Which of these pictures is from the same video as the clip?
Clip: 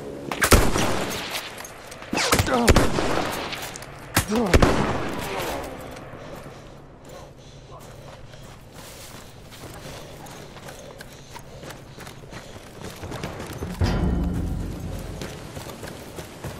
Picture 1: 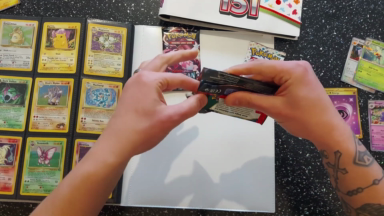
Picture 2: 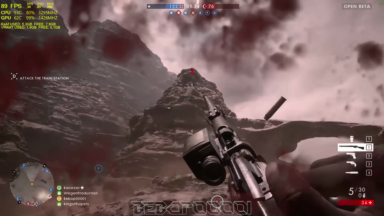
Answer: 2